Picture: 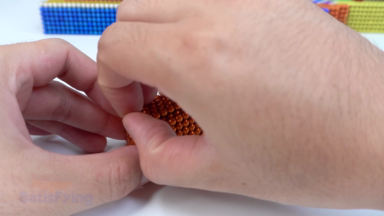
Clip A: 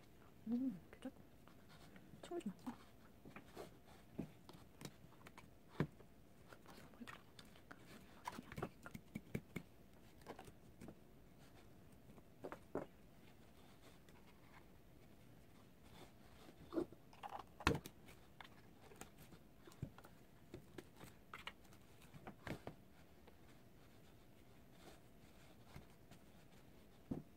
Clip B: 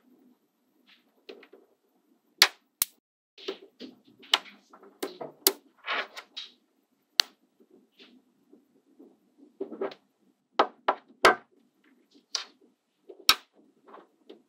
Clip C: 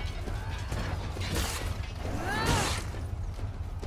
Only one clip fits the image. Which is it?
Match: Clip B